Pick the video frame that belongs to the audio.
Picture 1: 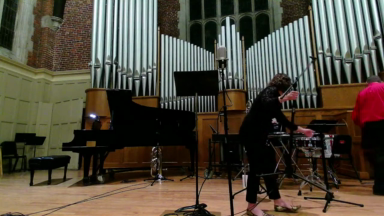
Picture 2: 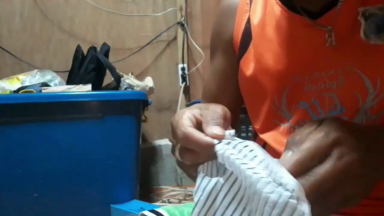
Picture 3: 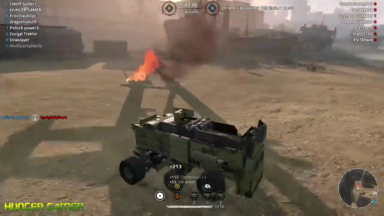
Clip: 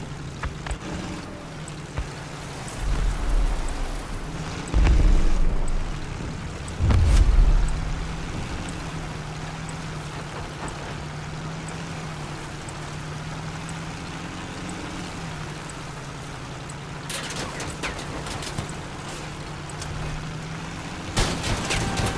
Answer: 3